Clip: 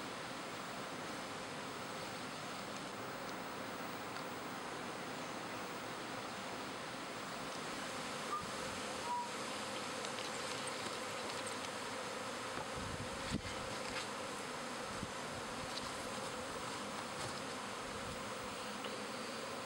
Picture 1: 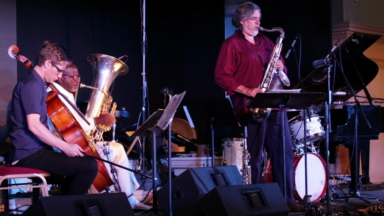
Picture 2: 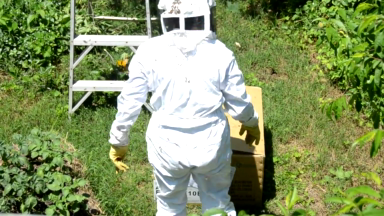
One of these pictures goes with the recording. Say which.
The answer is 2